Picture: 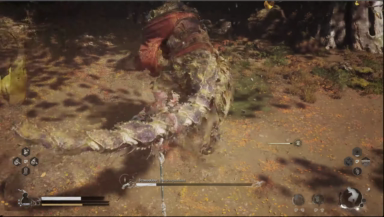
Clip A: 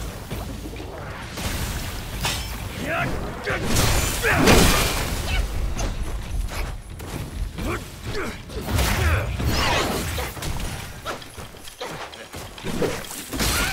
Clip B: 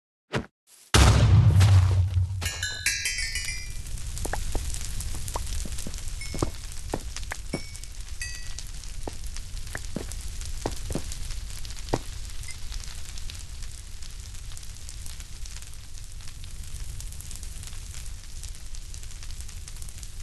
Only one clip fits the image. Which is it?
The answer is A